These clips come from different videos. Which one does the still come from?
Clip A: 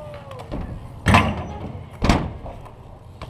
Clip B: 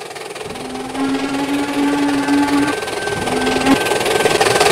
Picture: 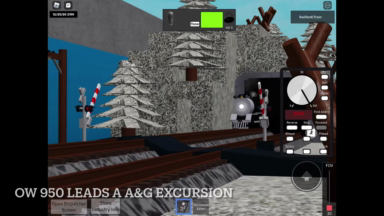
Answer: B